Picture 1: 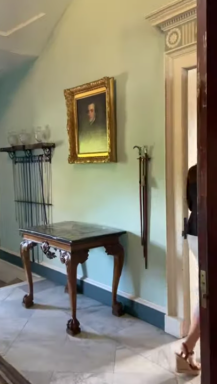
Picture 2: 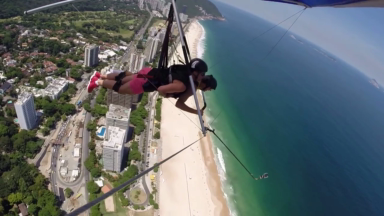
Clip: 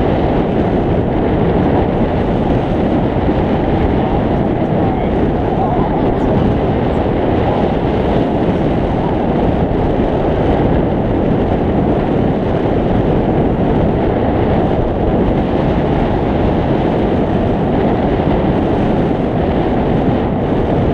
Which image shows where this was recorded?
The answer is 2